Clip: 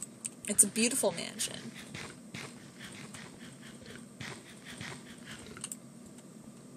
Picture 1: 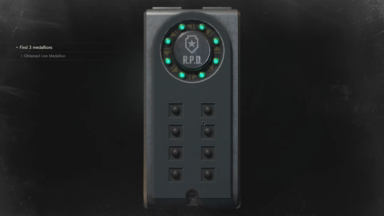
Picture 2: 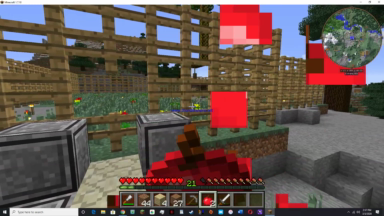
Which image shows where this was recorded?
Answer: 2